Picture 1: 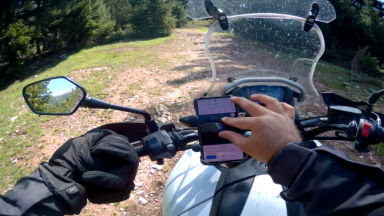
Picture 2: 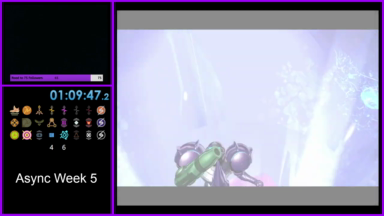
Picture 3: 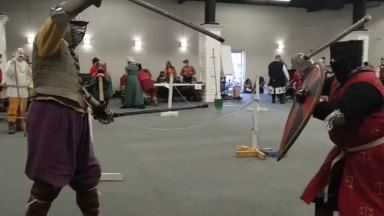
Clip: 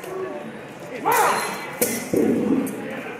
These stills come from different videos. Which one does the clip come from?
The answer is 3